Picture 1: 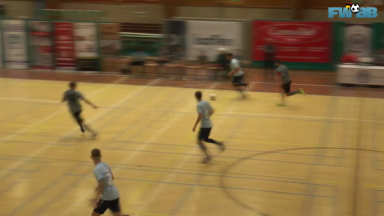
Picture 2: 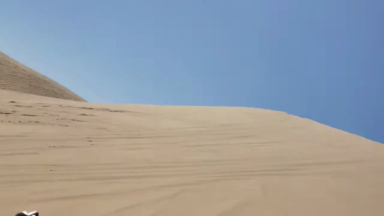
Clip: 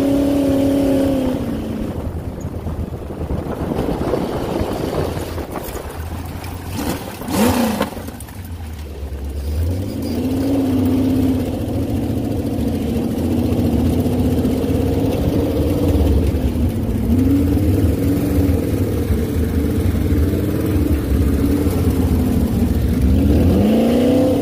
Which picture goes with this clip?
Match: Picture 2